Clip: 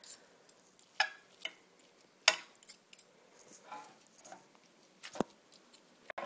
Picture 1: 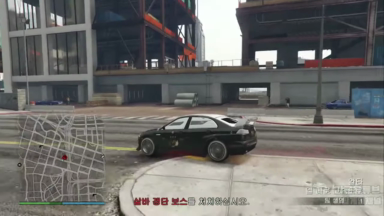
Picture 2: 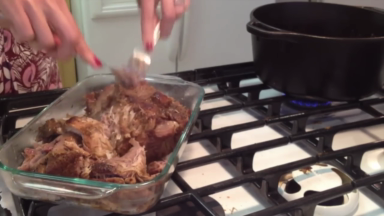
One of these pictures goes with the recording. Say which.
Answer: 2